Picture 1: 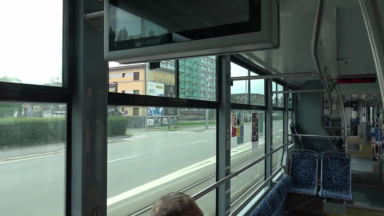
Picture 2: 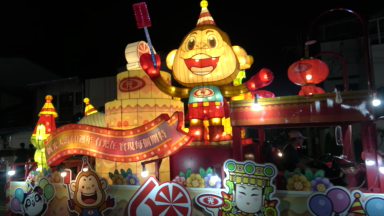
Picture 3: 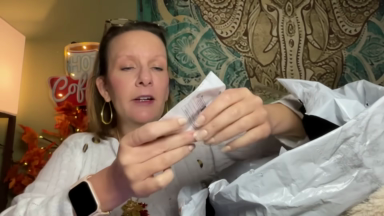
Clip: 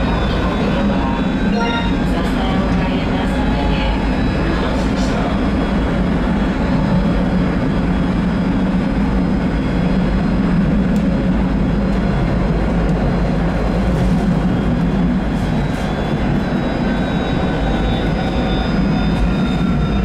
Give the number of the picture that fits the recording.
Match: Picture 1